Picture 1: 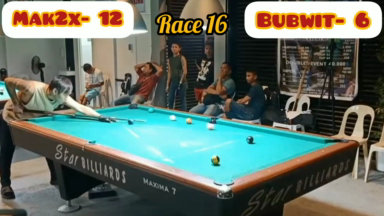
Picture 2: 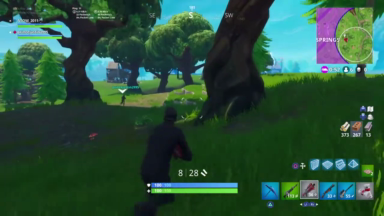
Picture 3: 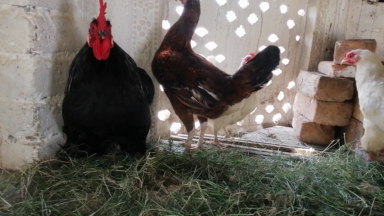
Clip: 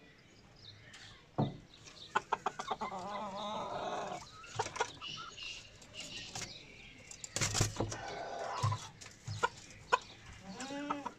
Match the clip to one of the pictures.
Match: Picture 3